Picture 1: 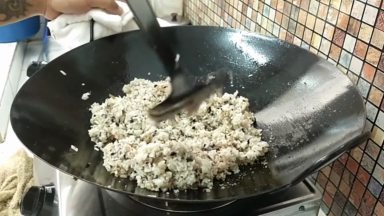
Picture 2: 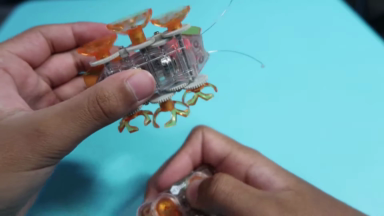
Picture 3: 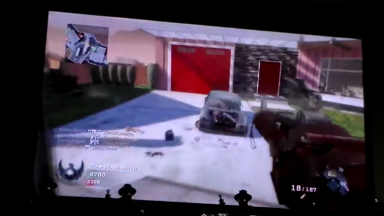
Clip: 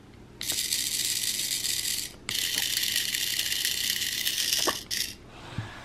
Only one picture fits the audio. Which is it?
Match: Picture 2